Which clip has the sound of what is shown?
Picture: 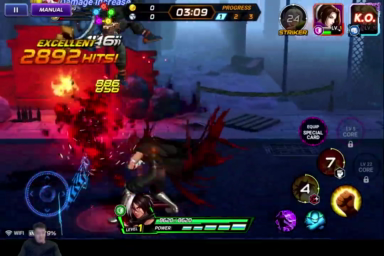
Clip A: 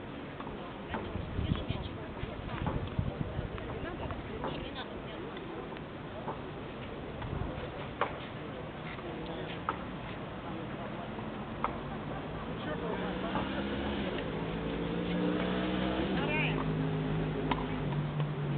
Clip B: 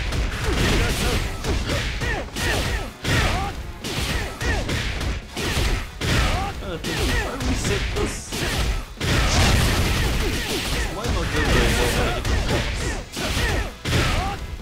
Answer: B